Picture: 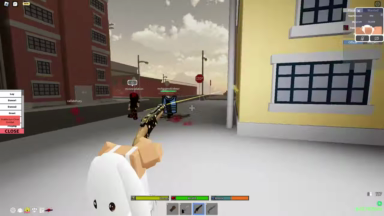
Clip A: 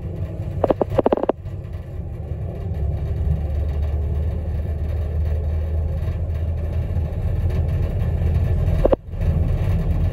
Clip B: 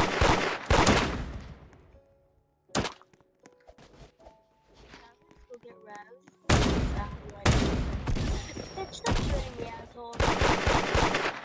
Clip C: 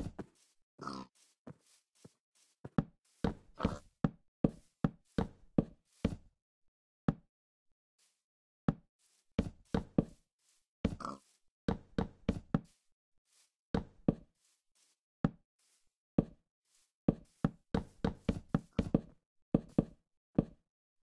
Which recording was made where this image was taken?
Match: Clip B